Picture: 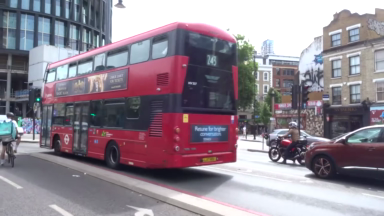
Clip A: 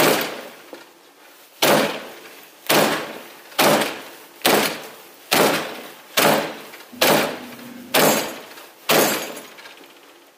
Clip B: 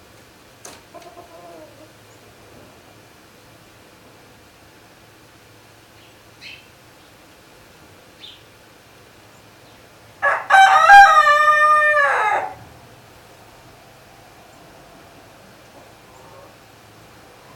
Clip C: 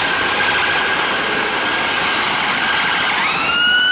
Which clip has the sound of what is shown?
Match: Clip C